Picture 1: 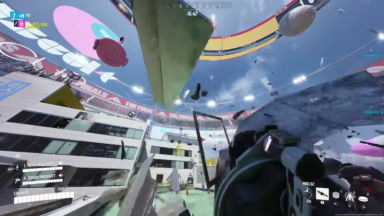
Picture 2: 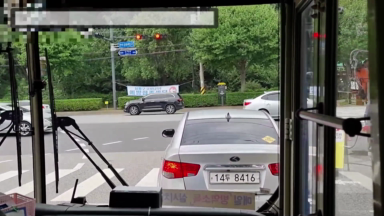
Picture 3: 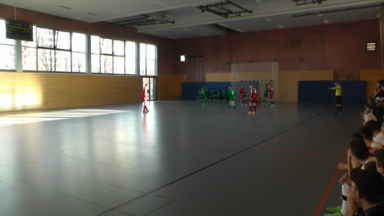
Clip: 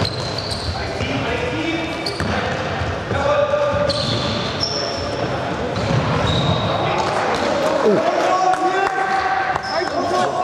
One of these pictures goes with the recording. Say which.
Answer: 3